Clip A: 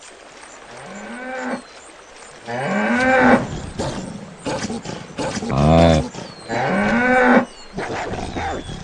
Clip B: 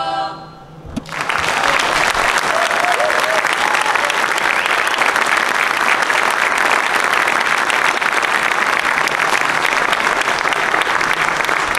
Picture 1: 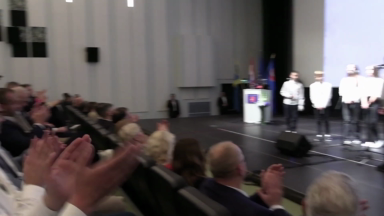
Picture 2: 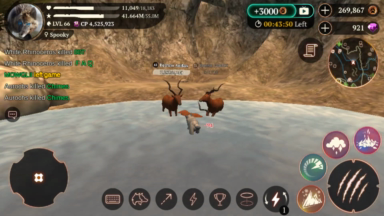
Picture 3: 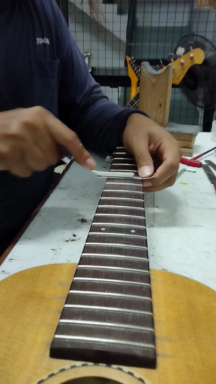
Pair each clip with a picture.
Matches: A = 2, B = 1